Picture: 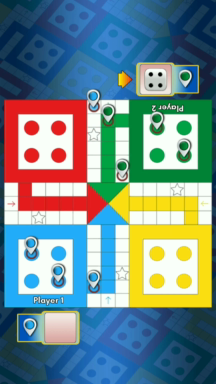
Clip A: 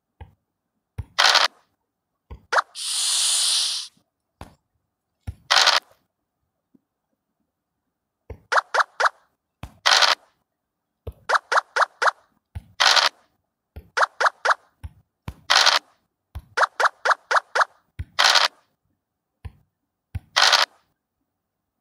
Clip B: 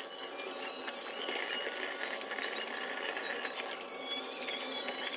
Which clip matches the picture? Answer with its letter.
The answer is A